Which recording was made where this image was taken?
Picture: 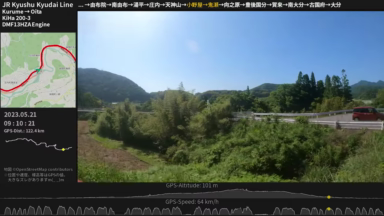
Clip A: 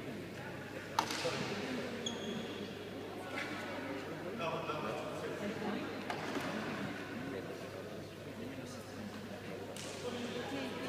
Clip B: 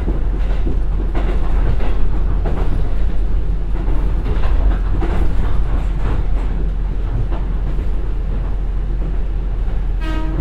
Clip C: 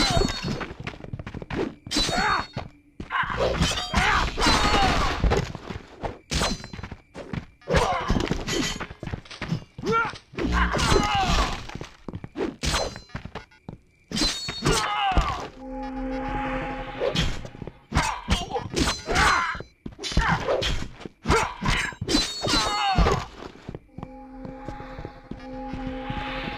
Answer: B